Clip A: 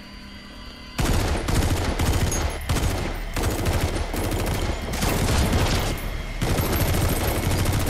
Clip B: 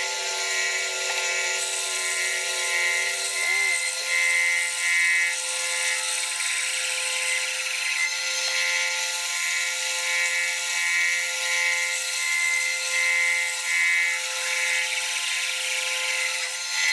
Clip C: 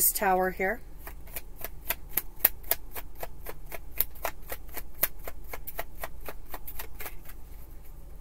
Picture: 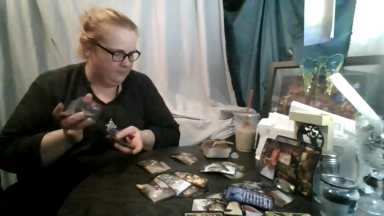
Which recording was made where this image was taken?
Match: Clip C